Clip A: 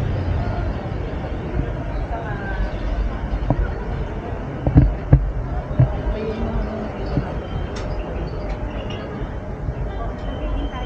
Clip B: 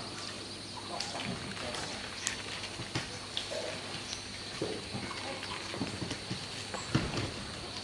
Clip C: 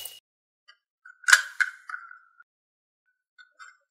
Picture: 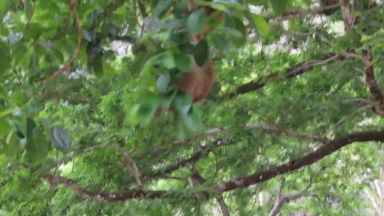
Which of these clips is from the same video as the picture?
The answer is B